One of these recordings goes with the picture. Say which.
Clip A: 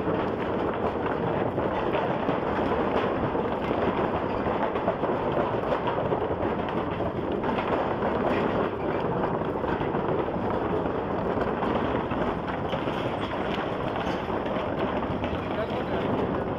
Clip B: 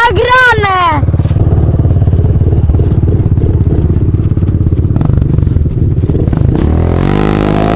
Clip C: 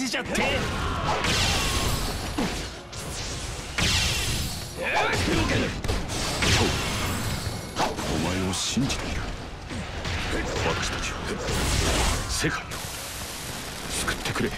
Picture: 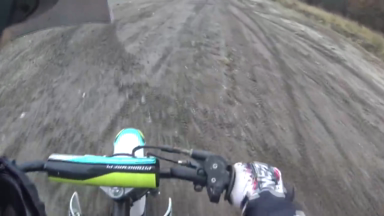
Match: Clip B